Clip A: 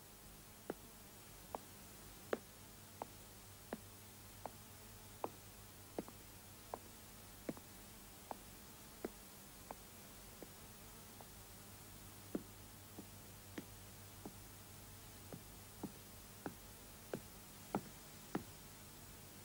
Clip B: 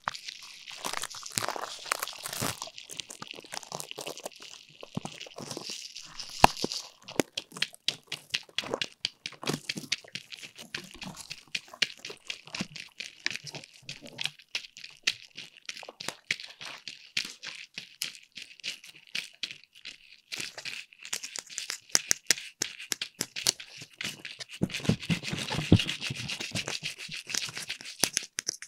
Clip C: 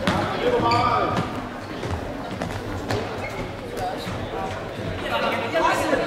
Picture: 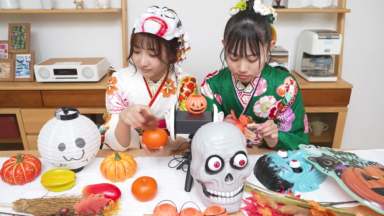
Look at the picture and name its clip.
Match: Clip B